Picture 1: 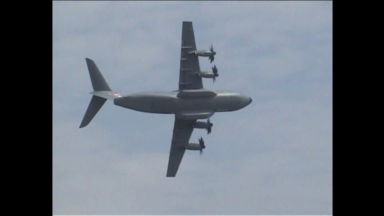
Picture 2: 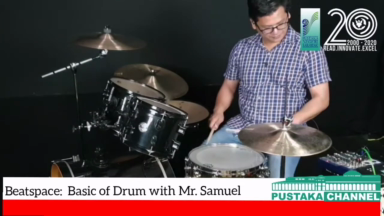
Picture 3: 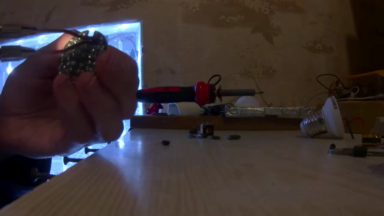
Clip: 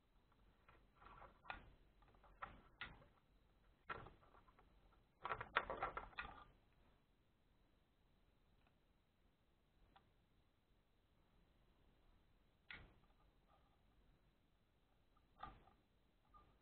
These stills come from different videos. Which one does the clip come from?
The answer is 3